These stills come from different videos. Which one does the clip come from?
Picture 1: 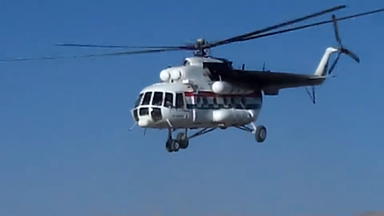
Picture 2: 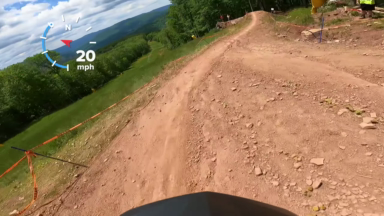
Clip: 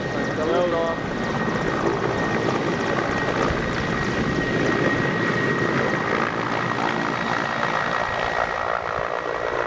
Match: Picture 1